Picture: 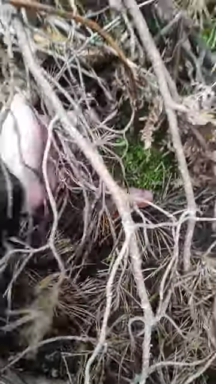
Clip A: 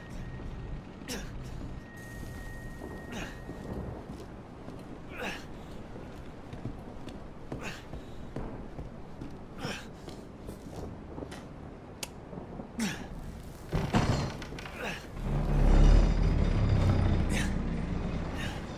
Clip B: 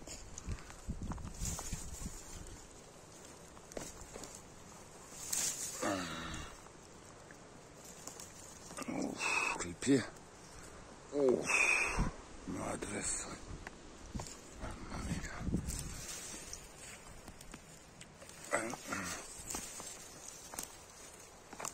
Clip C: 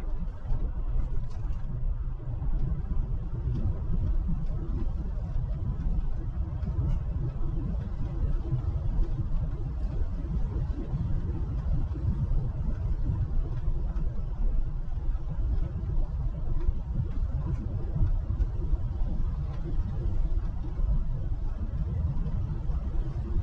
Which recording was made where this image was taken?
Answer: B